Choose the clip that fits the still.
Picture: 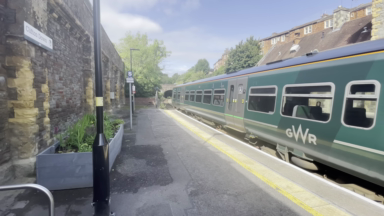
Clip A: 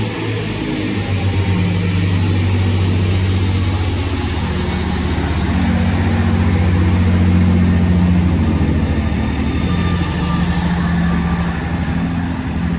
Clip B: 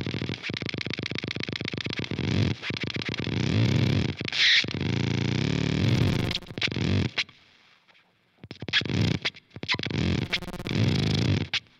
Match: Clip A